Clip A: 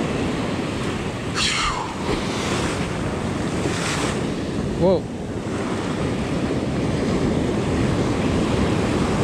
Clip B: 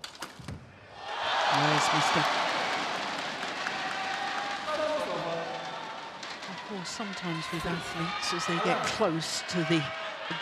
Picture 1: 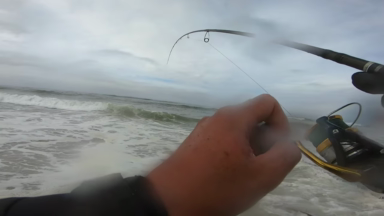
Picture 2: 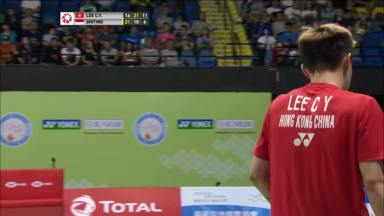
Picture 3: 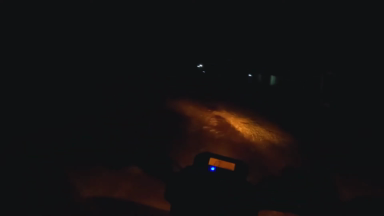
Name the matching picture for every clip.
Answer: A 1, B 2